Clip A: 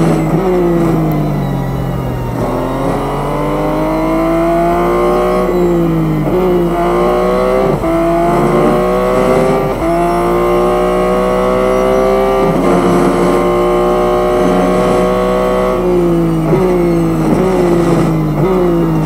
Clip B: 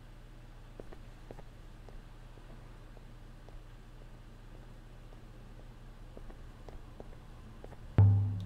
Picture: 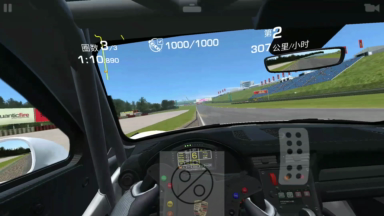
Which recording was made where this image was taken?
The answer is A